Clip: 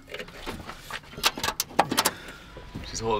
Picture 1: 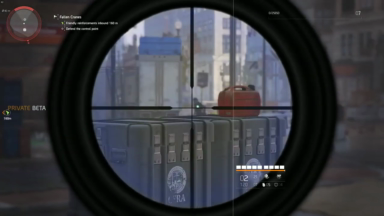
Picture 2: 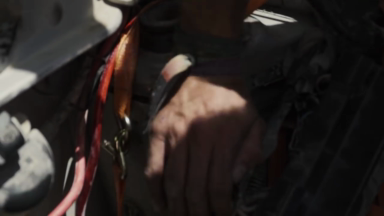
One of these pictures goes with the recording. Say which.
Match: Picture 2